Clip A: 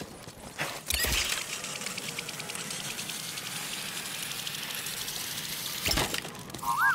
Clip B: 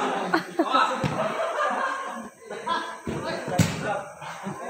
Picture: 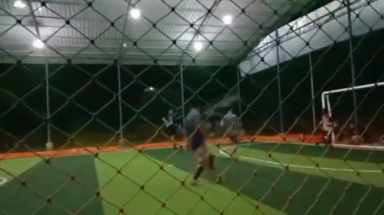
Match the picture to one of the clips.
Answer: B